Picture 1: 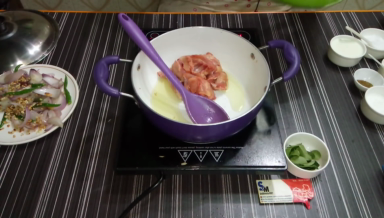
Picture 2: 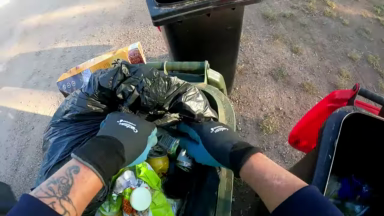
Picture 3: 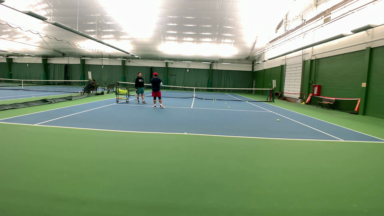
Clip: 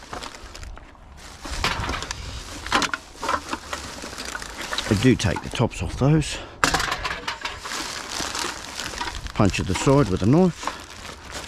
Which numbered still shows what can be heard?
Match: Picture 2